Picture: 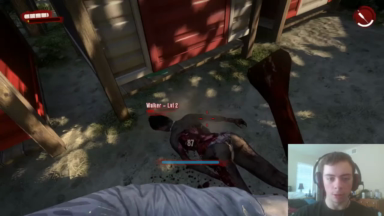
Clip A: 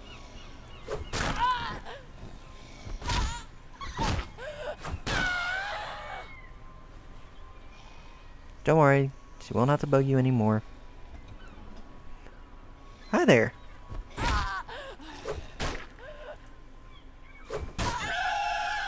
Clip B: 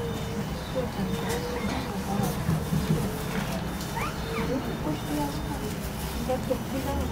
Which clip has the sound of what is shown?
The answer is A